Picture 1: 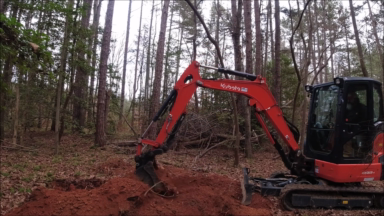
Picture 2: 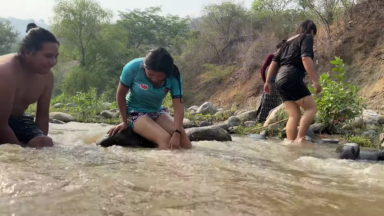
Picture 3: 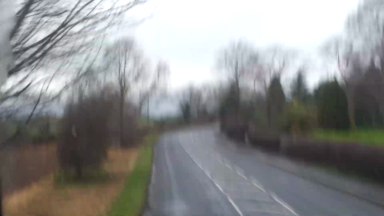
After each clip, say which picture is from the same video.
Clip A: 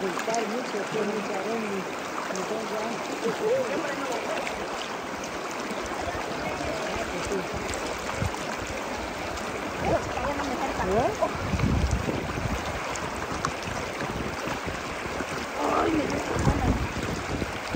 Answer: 2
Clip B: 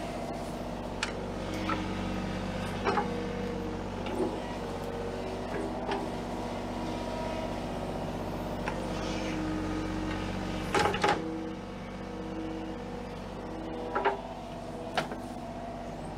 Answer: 1